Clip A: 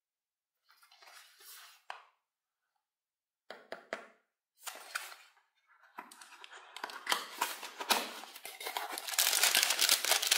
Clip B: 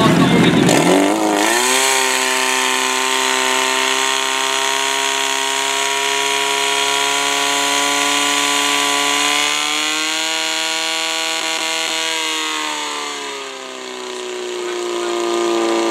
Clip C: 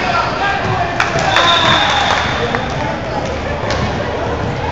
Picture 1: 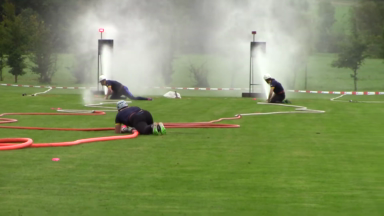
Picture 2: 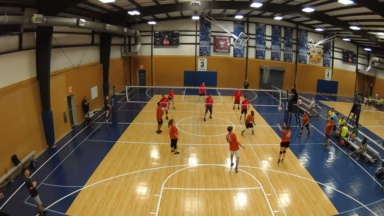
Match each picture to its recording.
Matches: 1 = B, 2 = C